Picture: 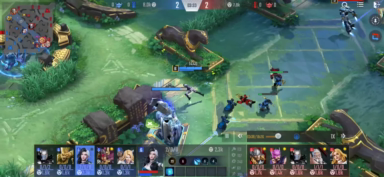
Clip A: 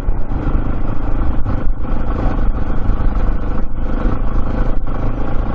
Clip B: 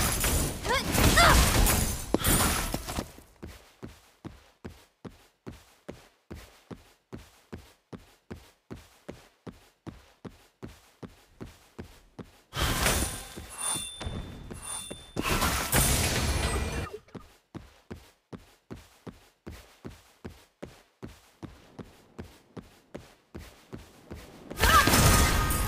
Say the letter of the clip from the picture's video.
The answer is B